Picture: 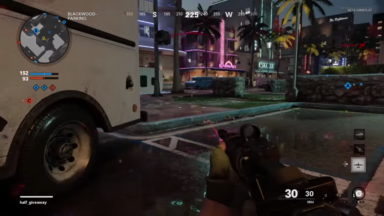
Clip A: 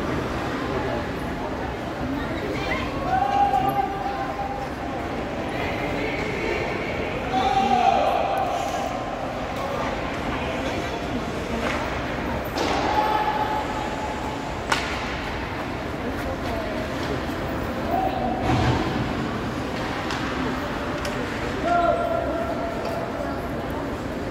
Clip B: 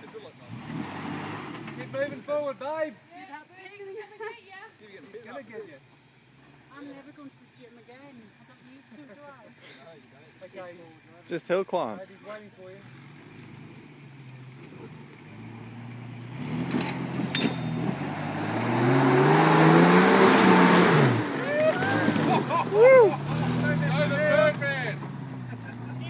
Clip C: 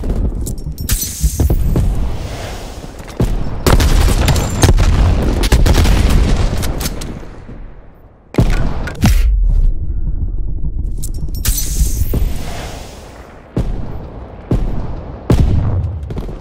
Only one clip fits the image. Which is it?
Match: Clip C